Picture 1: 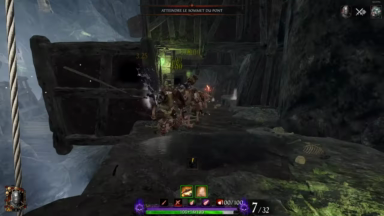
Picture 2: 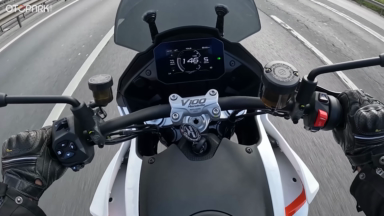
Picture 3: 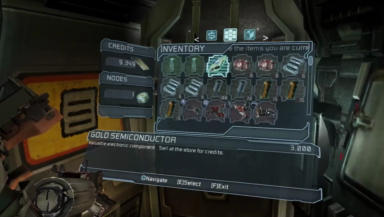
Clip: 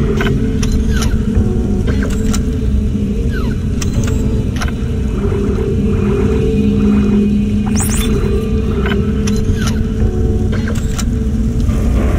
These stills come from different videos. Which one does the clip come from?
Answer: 3